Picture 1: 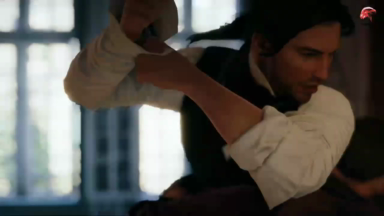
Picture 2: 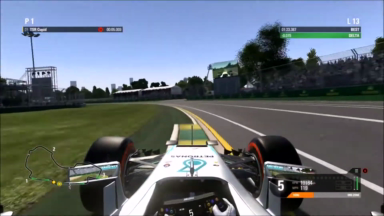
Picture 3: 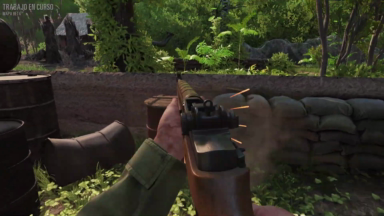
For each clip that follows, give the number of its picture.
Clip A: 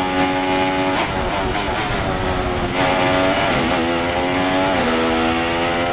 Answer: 2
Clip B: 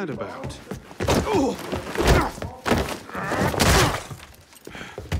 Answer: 1